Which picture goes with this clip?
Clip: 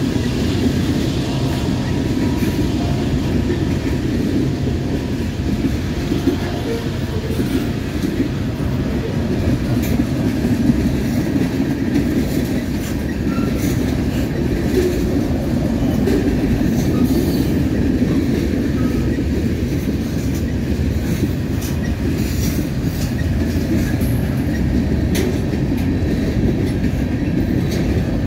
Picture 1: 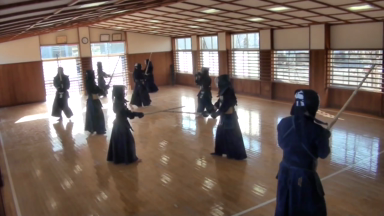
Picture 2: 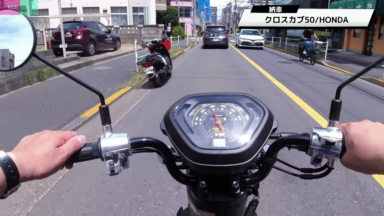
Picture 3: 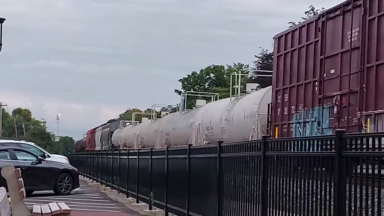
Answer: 3